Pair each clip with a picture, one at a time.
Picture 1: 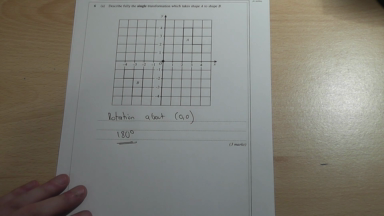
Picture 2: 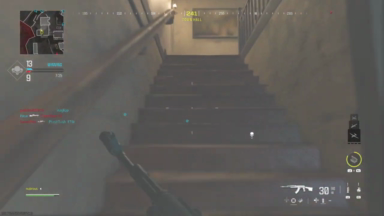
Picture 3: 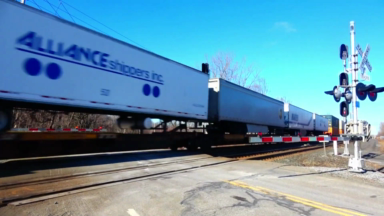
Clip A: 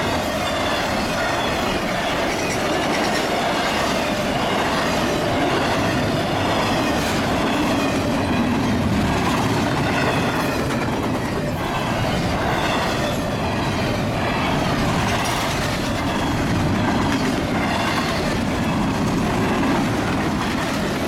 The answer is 3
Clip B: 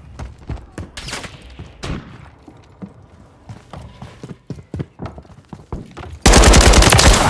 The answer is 2